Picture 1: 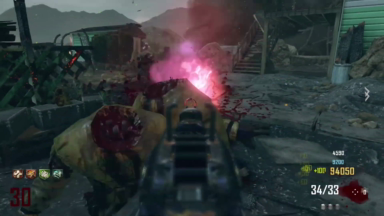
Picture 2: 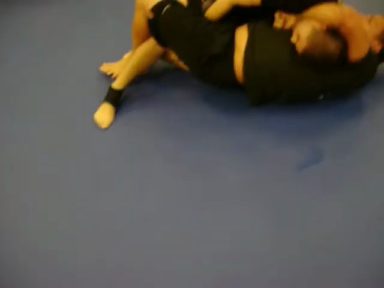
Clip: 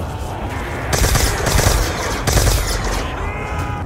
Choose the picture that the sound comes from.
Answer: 1